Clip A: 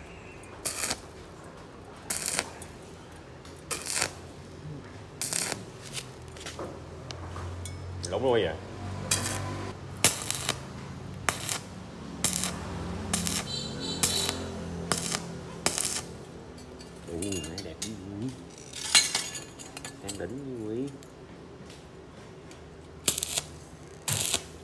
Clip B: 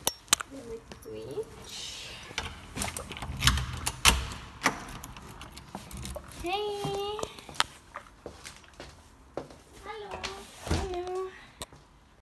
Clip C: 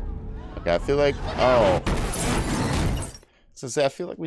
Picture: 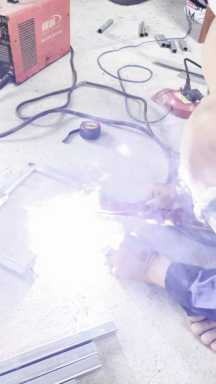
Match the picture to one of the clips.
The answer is A